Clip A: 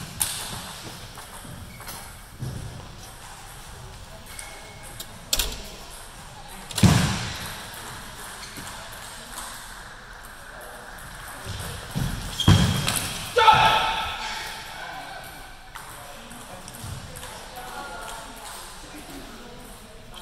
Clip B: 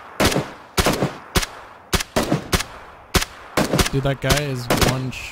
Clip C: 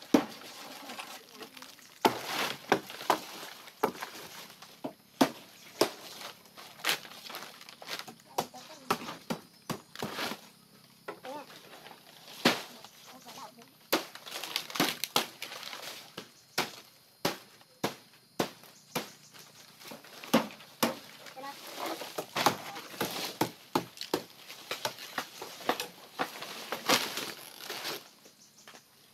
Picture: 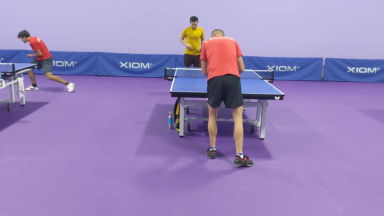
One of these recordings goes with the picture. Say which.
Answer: A